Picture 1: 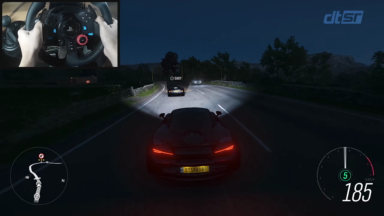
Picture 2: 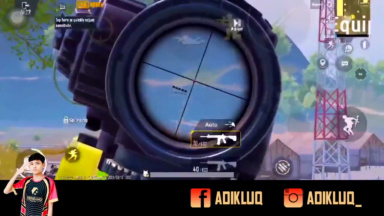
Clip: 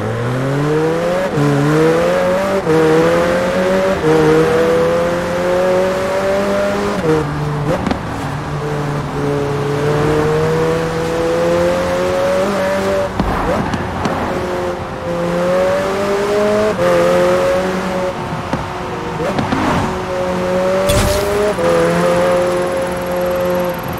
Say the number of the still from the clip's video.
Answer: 1